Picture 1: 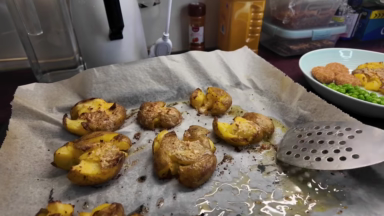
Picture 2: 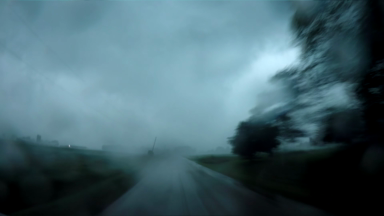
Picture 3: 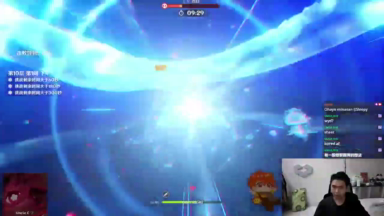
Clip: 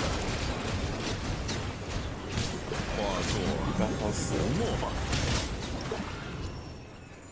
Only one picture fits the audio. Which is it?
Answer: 3